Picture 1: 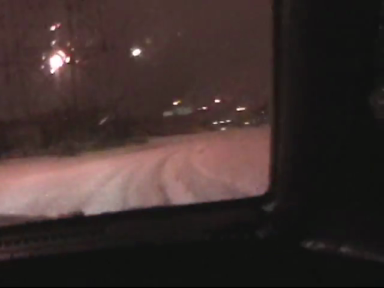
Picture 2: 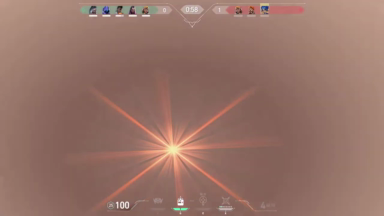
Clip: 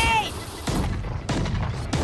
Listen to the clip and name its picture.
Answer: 2